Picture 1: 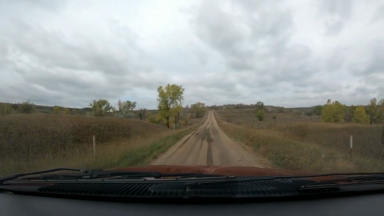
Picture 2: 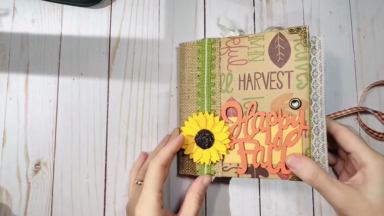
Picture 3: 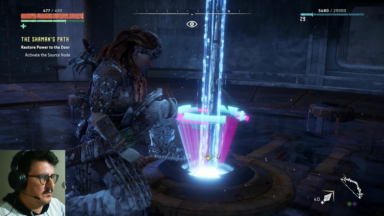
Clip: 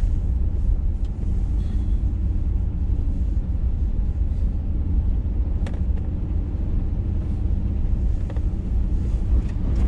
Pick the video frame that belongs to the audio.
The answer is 1